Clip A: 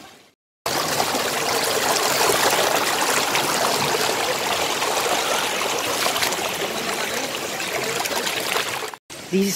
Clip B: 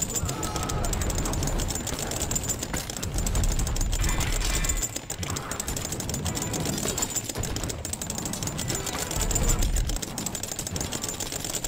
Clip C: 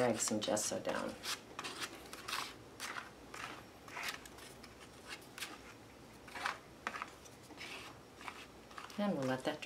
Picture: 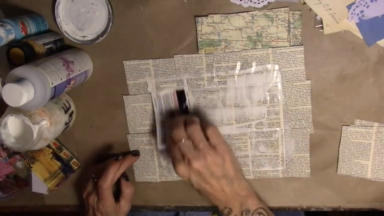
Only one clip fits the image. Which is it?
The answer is C